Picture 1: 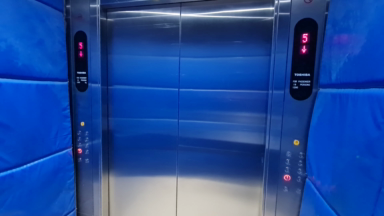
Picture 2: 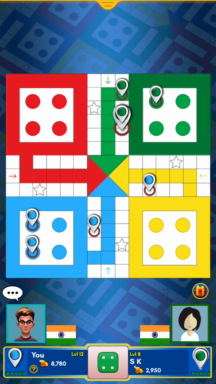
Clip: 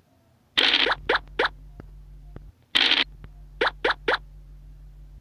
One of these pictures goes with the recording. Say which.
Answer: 2